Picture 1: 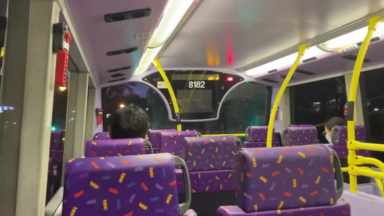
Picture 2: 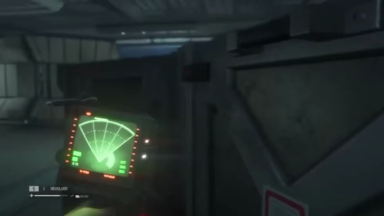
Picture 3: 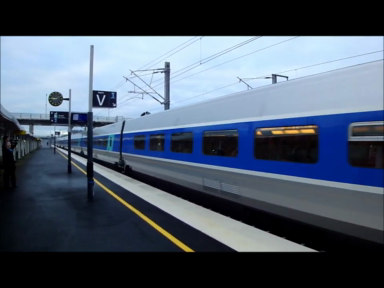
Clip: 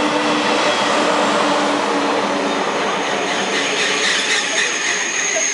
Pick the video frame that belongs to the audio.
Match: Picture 3